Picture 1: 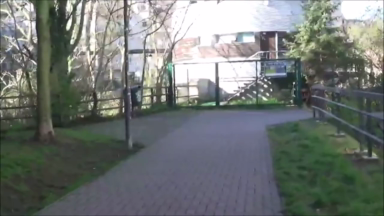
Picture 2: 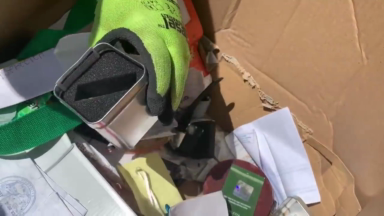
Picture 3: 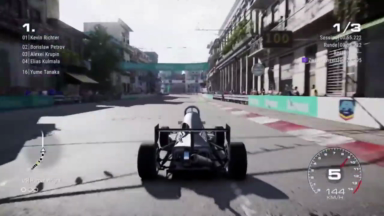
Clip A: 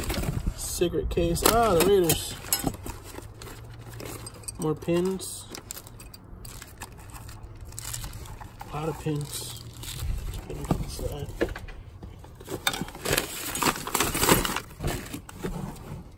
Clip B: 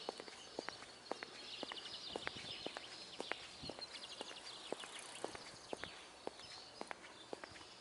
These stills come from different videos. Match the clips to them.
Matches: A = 2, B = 1